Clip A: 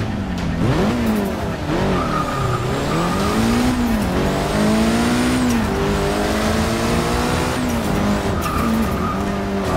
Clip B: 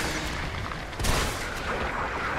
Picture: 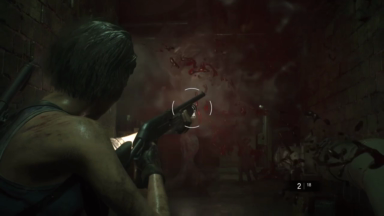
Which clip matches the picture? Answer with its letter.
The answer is B